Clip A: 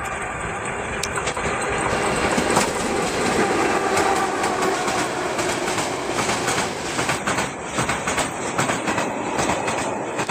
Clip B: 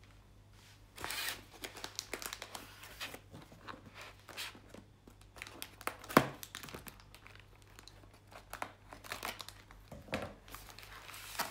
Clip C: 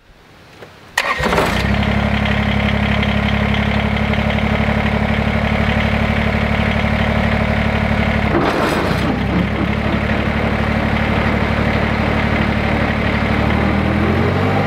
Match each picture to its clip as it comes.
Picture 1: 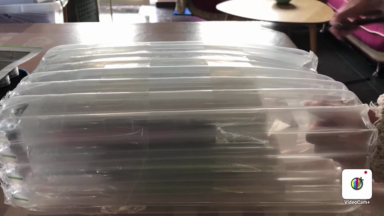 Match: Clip B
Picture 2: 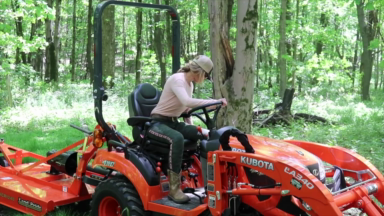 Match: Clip C